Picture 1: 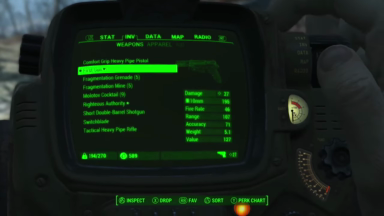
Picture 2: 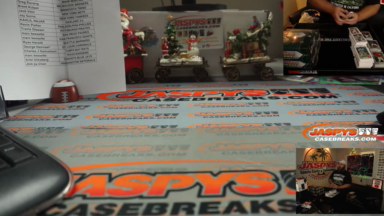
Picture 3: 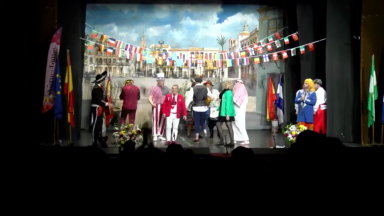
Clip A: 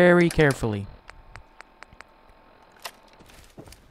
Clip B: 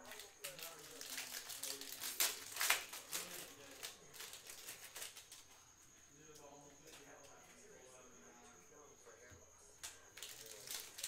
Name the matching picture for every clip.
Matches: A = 1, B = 2